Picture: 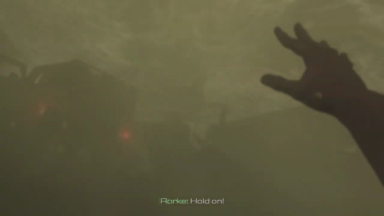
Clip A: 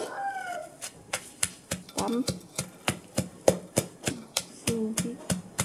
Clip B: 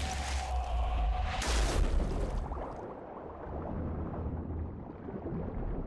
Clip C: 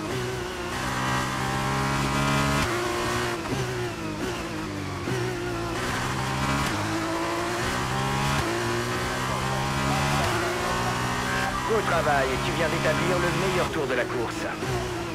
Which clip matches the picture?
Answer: B